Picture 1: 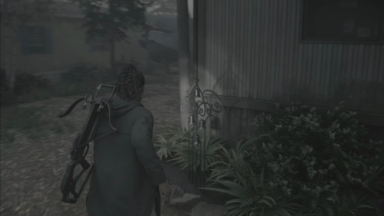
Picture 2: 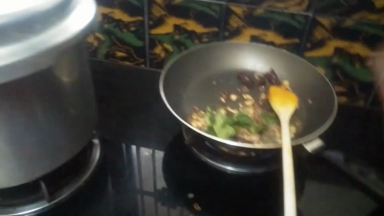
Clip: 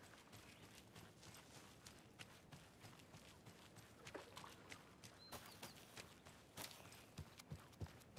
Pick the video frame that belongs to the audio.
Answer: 1